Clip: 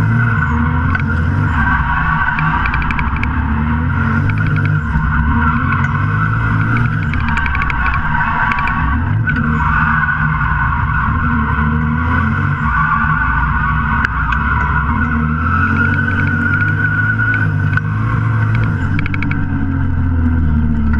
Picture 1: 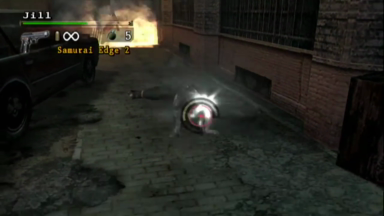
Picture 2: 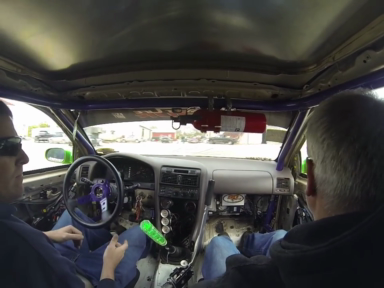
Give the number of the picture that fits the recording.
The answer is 2